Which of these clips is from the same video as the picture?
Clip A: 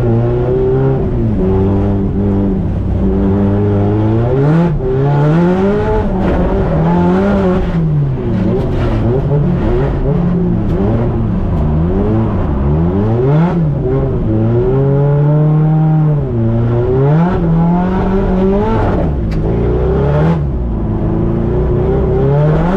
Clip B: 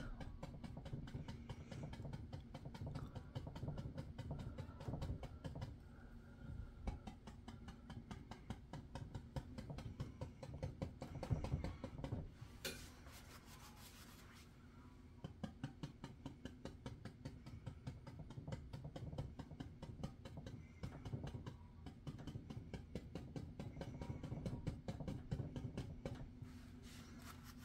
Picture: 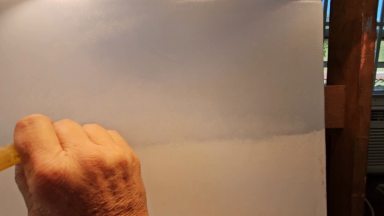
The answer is B